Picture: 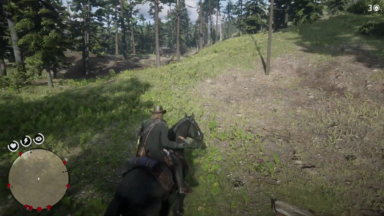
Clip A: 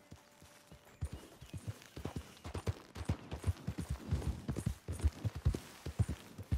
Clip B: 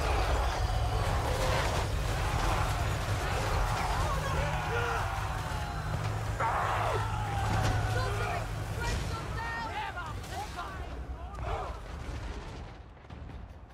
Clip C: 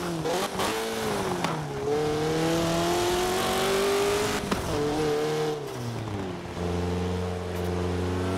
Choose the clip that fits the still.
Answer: A